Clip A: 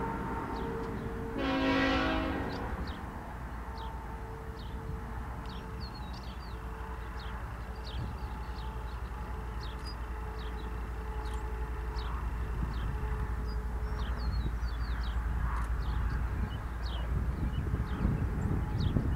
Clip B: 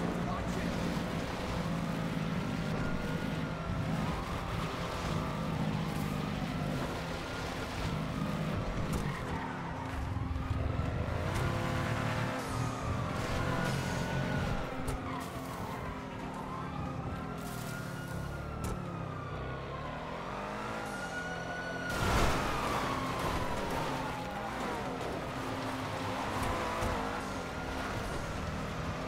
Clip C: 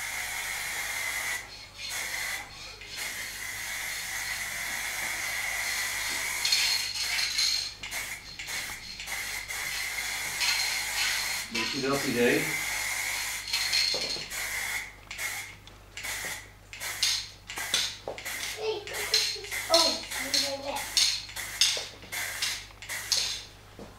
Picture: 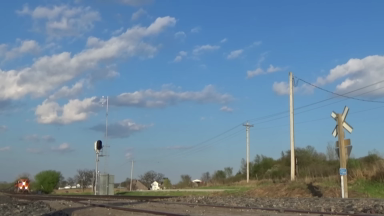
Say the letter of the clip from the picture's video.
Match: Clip A